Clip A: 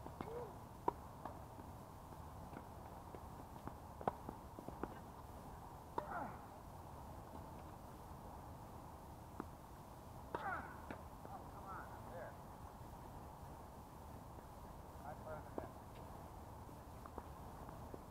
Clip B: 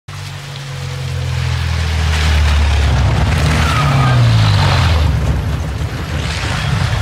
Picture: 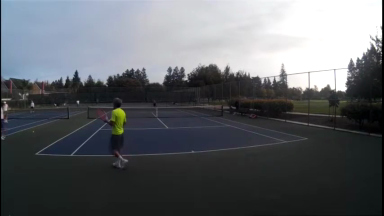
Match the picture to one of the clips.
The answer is A